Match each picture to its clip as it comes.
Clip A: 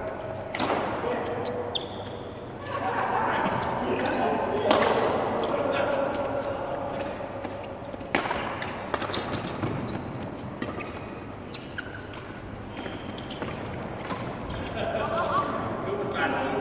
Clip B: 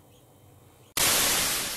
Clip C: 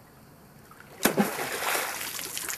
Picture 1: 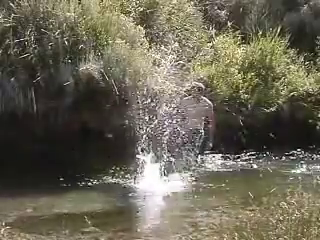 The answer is C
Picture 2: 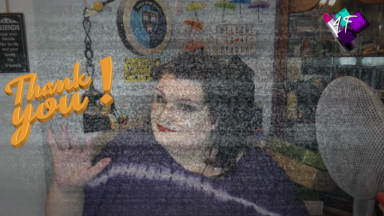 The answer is B